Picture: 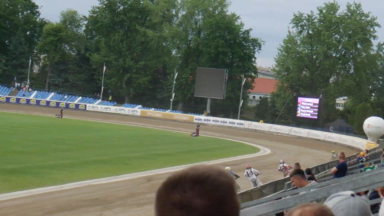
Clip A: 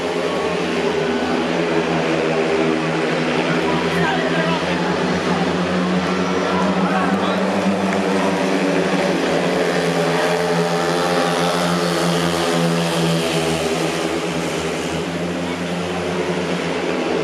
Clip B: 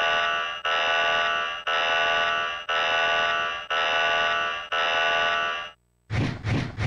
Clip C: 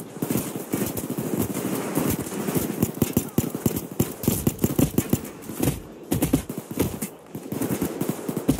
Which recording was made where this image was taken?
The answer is A